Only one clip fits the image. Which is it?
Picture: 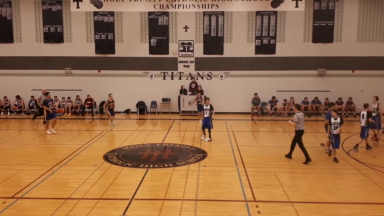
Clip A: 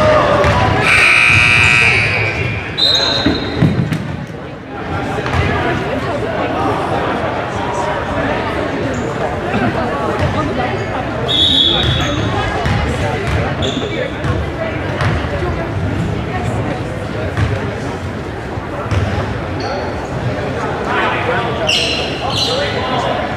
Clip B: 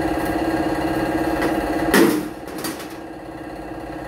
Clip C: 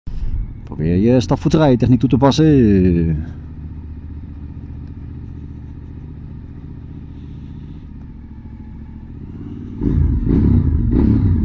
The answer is A